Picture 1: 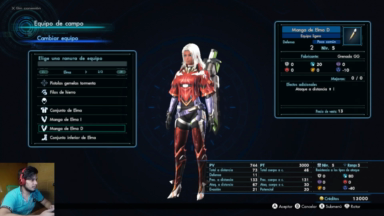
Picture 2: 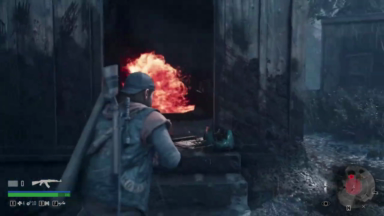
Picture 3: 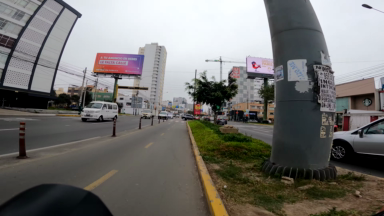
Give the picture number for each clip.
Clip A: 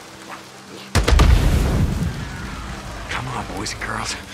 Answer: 2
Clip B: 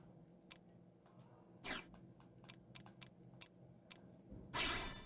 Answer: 1